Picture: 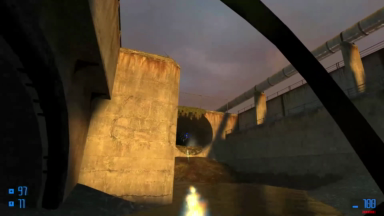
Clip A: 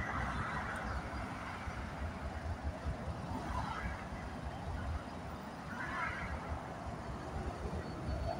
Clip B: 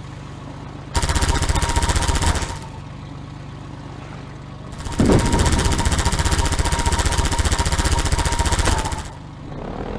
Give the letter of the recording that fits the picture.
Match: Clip B